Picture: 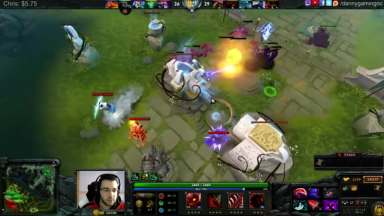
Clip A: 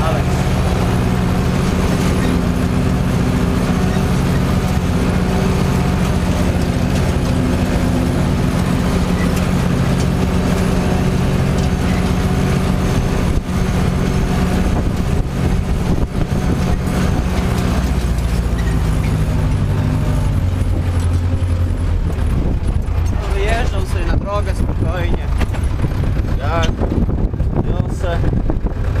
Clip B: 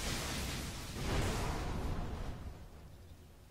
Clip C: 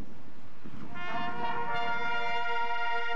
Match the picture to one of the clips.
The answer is B